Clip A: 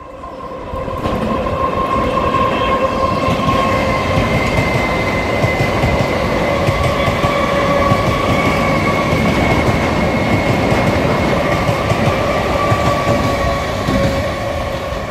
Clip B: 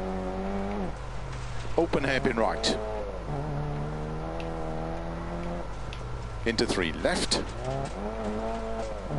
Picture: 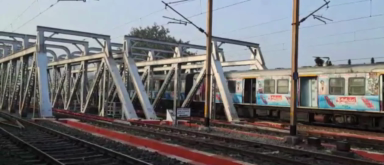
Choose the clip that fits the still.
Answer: A